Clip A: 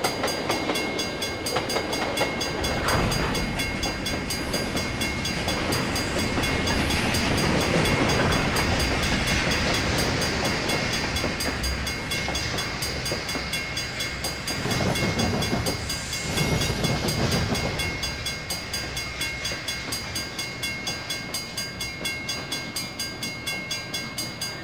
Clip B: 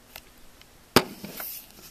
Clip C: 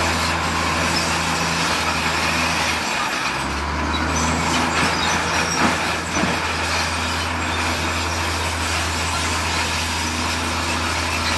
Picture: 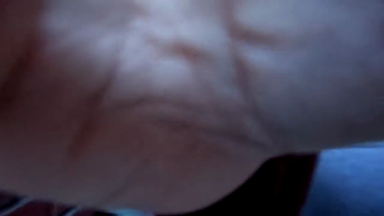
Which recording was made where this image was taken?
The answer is B